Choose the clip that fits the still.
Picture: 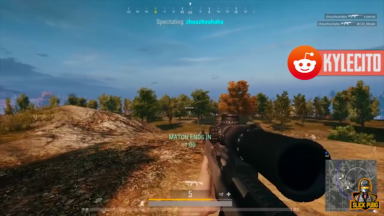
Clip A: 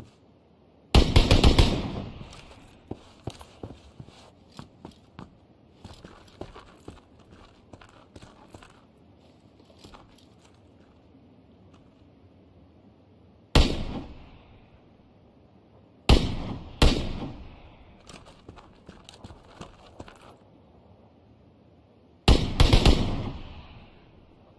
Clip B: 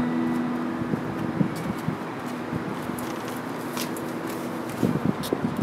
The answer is A